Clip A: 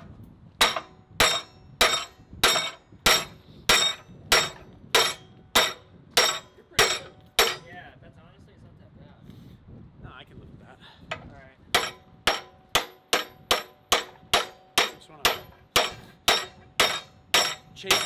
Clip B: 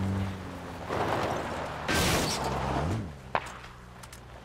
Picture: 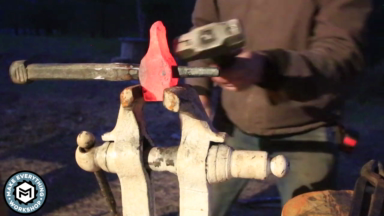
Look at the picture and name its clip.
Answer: A